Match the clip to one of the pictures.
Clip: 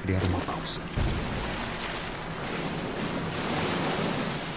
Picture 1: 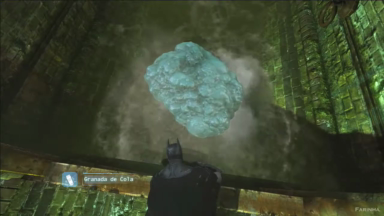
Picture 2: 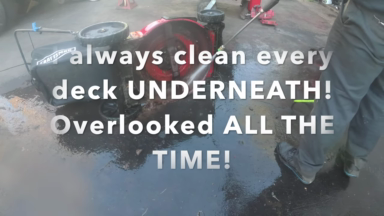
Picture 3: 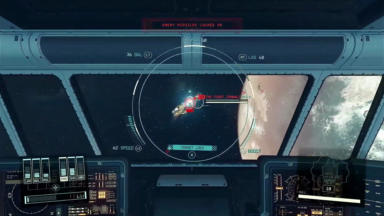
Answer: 1